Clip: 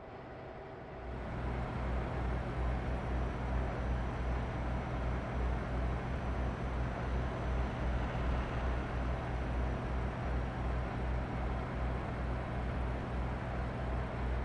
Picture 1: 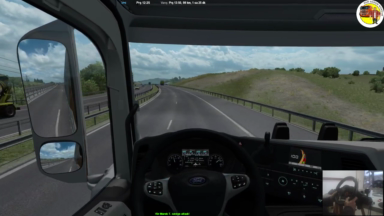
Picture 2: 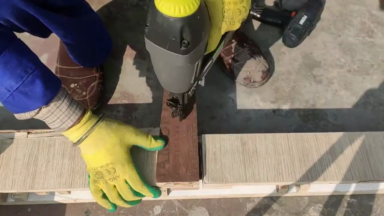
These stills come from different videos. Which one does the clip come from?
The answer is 1